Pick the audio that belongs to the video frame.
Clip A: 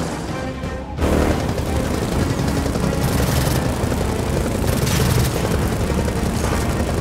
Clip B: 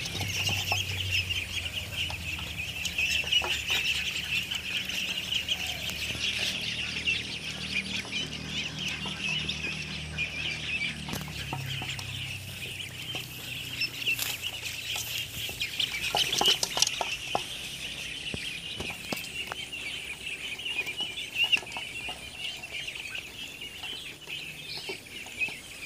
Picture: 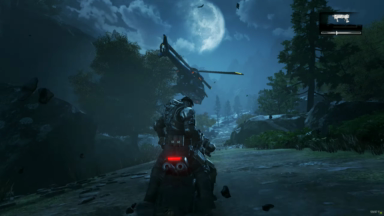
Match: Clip A